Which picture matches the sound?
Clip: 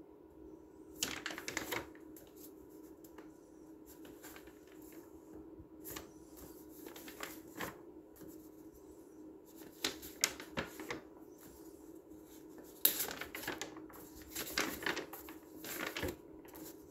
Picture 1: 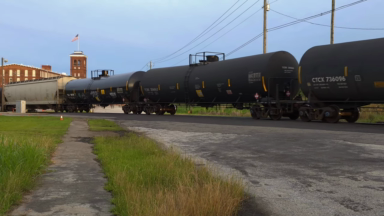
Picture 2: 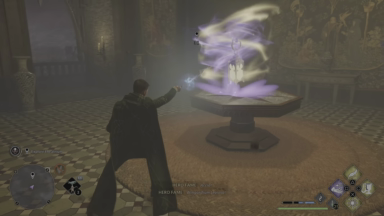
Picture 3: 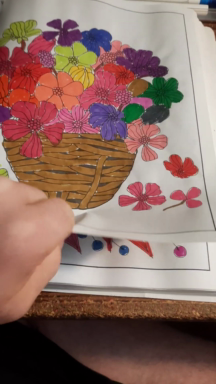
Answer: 3